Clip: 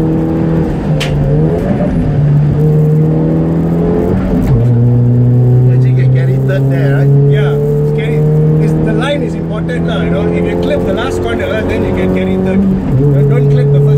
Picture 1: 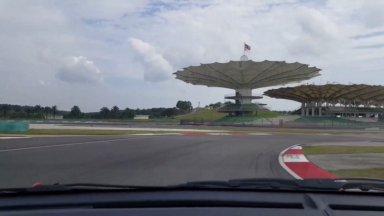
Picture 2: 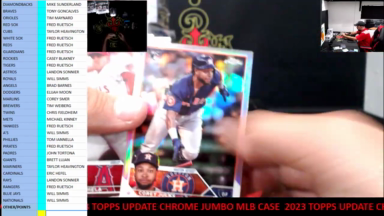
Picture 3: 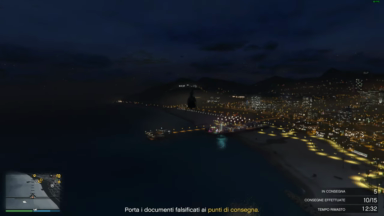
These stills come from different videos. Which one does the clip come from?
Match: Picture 1